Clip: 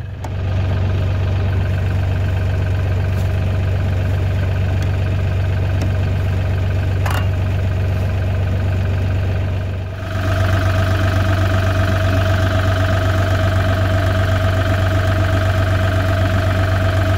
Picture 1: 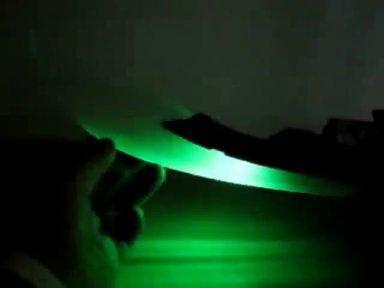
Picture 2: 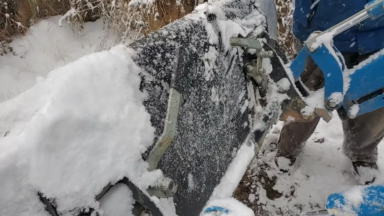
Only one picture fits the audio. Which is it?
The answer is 2